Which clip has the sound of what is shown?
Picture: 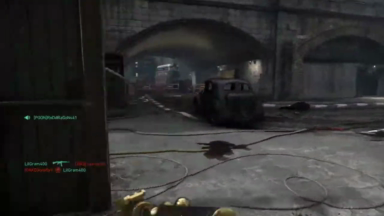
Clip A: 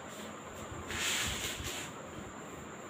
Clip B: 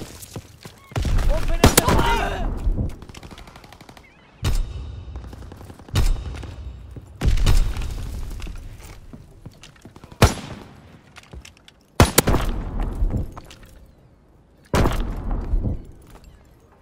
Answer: B